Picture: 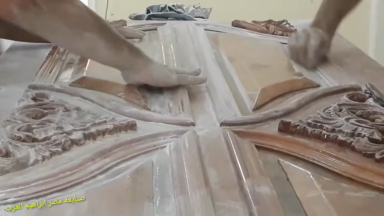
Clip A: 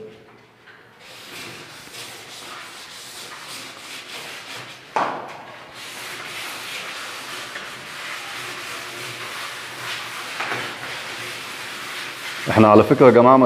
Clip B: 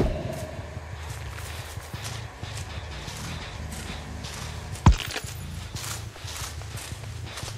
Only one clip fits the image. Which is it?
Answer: A